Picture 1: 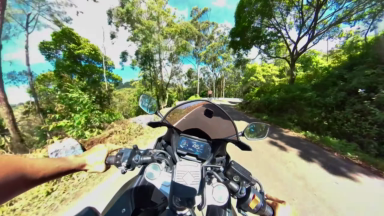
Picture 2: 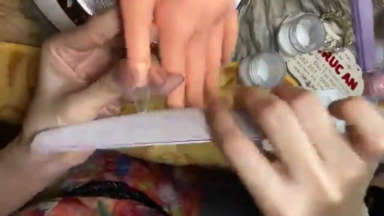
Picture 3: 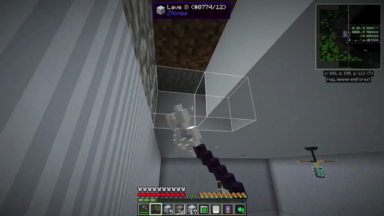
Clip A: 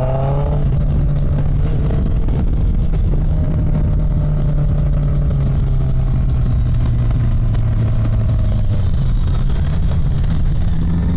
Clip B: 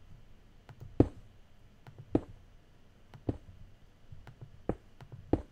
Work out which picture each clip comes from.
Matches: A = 1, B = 3